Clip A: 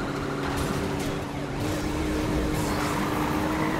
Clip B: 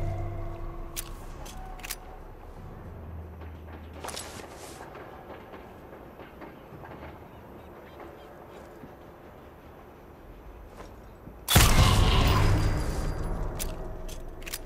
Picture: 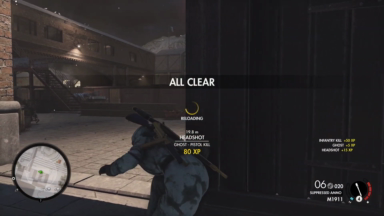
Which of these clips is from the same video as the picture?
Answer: B